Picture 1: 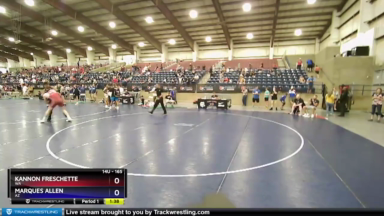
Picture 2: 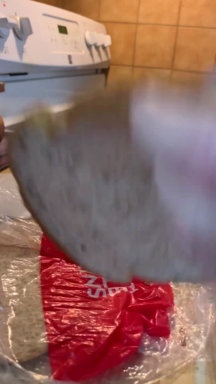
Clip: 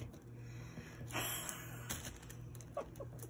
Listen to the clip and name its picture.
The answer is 2